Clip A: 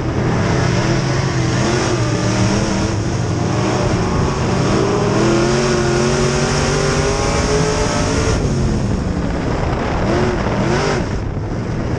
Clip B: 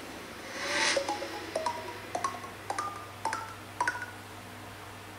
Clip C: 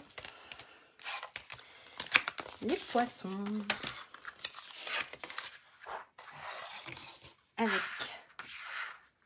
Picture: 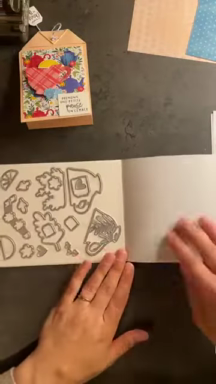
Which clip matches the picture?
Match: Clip C